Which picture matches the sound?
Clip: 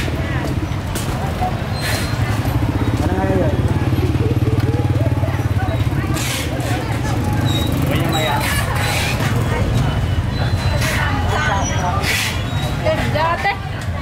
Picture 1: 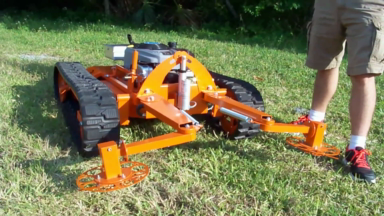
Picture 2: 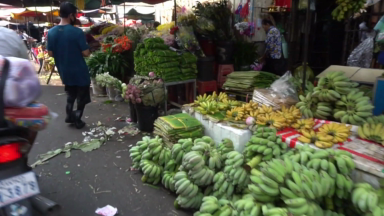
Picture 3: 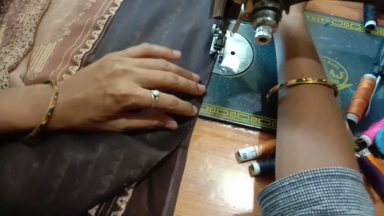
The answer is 2